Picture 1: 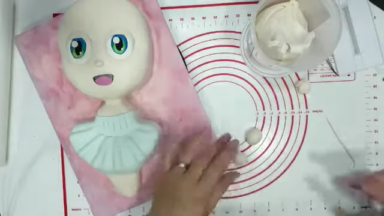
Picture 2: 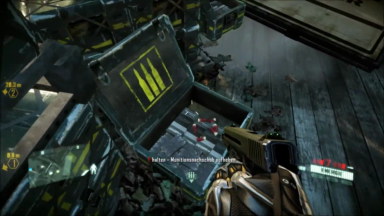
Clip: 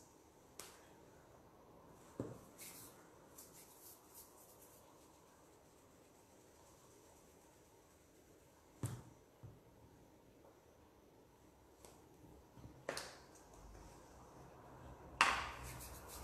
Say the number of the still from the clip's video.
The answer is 1